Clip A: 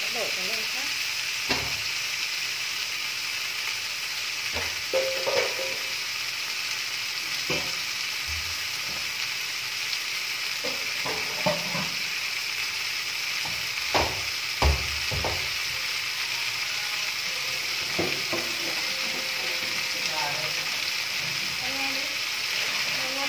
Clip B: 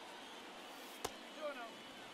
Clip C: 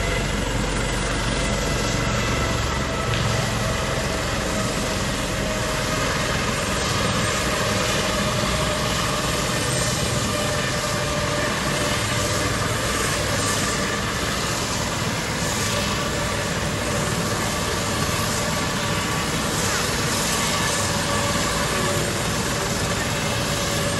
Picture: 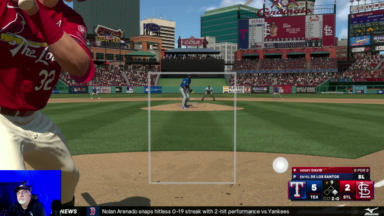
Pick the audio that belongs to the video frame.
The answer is B